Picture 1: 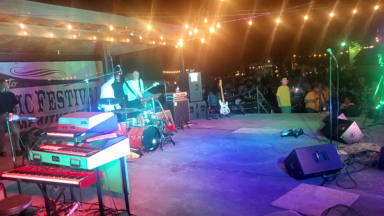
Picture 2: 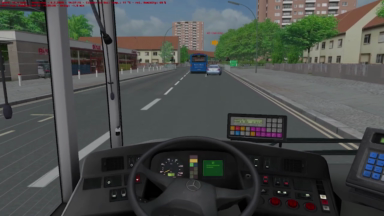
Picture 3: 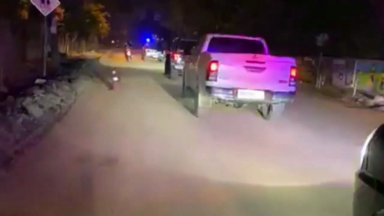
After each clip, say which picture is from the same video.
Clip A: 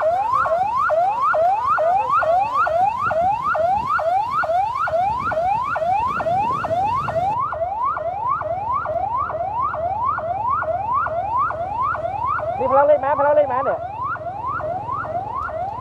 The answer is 3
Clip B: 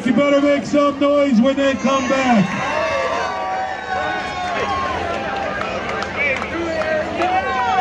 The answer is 1